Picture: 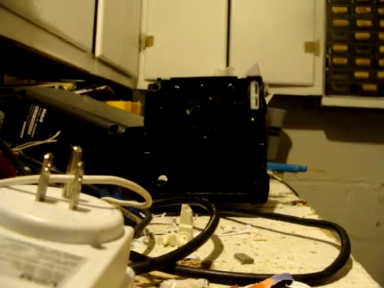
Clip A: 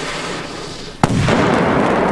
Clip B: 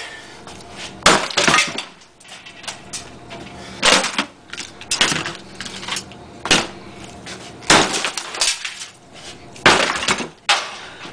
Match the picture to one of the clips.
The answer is B